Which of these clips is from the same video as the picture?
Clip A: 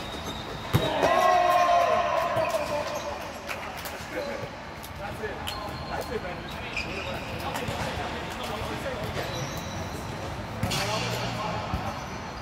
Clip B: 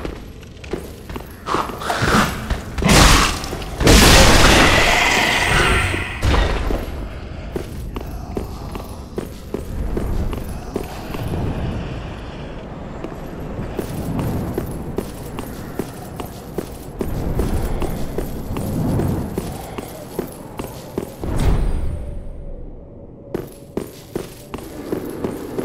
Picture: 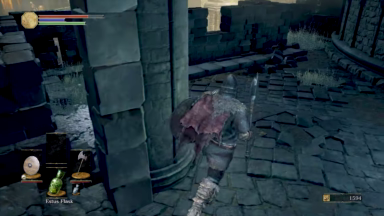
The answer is B